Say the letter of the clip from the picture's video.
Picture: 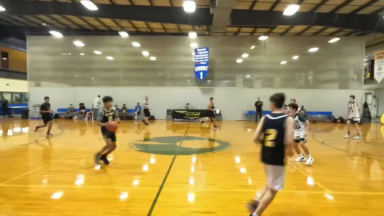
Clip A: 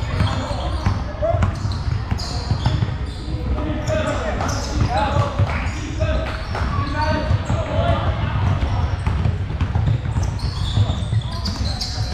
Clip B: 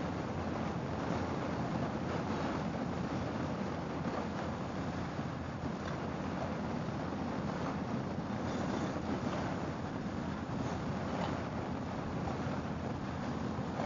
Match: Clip A